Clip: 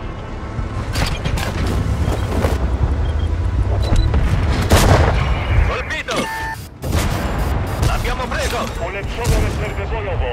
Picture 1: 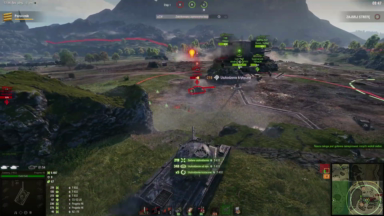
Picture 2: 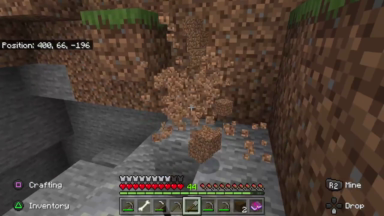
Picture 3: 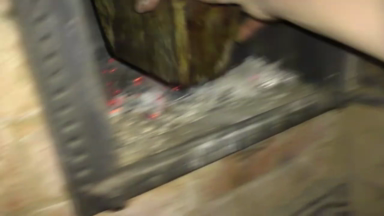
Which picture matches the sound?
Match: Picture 1